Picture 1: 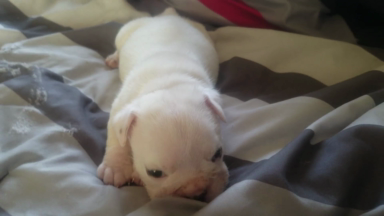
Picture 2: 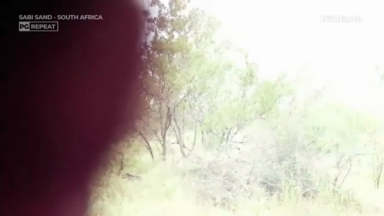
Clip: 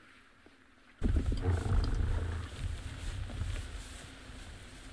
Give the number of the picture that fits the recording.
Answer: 2